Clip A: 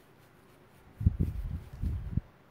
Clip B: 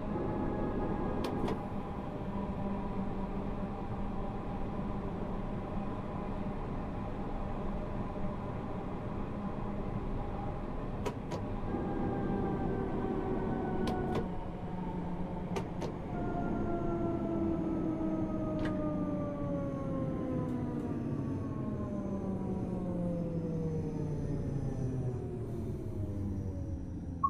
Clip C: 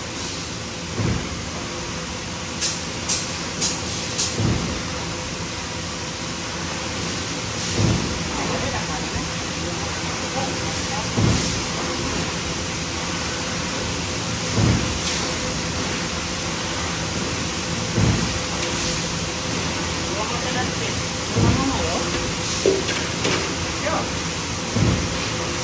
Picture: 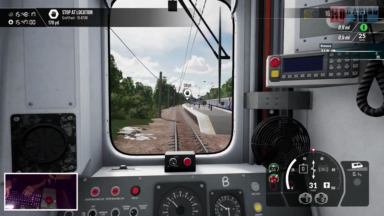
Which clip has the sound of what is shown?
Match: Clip B